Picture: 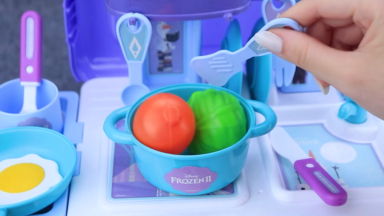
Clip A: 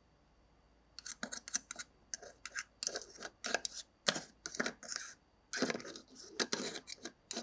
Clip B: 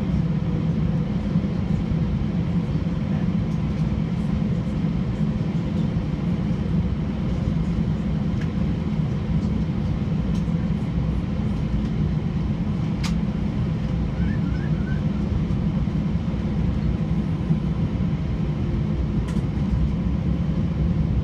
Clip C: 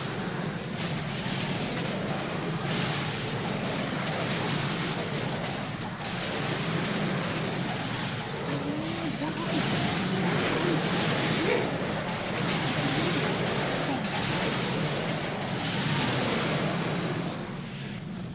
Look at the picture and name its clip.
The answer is A